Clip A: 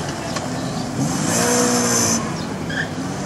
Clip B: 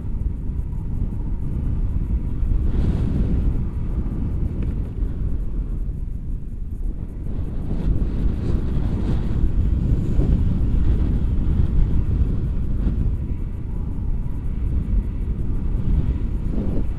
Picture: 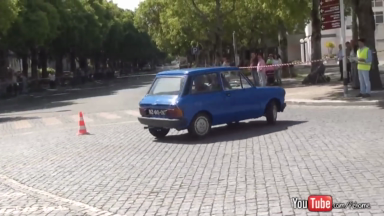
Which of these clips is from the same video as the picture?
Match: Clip A